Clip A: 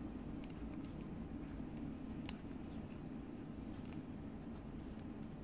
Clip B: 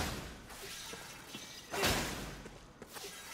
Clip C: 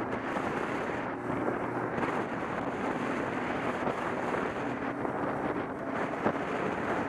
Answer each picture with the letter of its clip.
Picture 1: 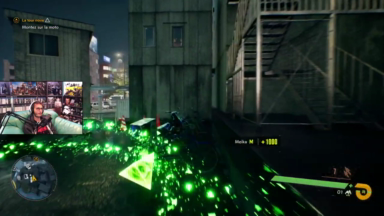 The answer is B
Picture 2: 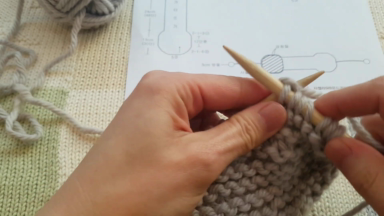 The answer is A